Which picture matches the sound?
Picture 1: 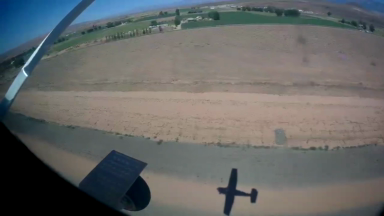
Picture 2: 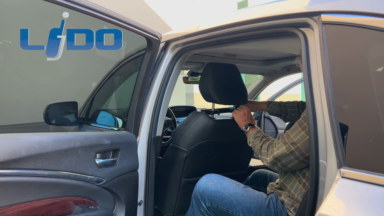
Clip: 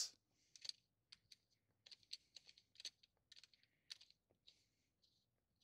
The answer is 2